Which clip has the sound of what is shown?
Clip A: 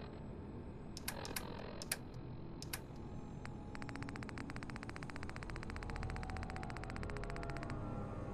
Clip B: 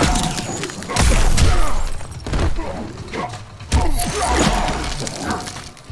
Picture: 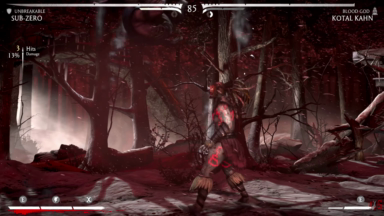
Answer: B